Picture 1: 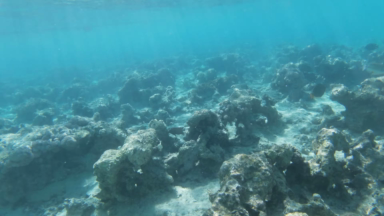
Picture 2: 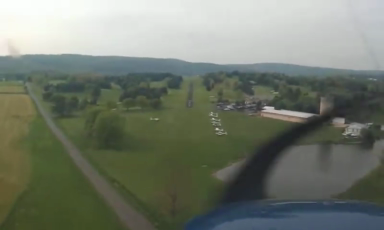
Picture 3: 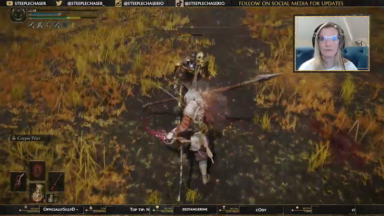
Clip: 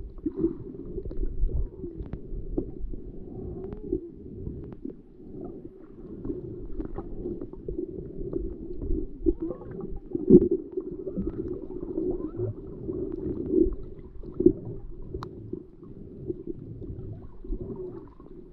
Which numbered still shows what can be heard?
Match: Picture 1